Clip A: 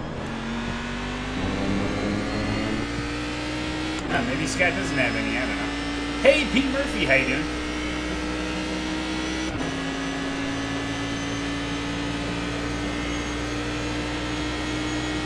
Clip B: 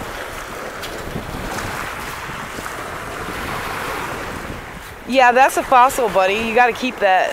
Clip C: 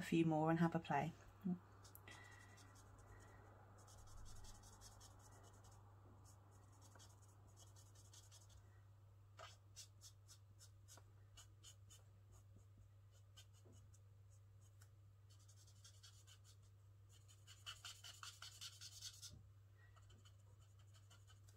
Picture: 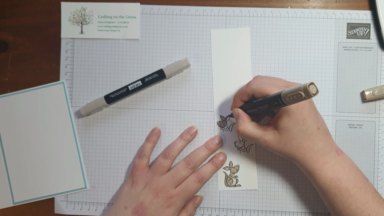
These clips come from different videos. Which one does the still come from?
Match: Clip C